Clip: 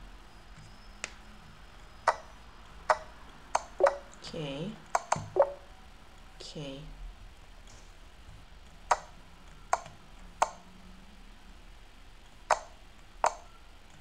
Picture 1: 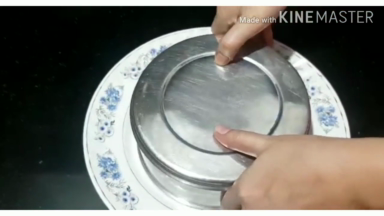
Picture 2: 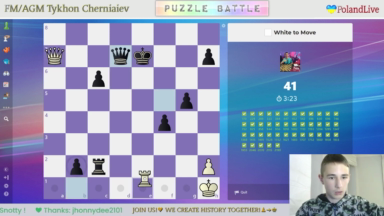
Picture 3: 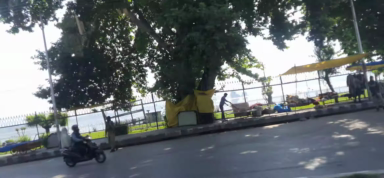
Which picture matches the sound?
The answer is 2